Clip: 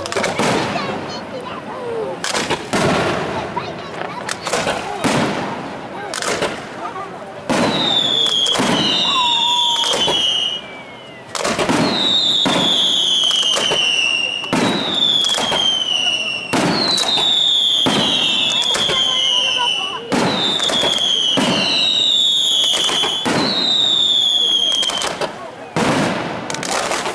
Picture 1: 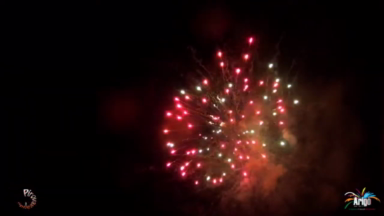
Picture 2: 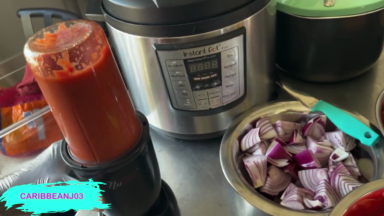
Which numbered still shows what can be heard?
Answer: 1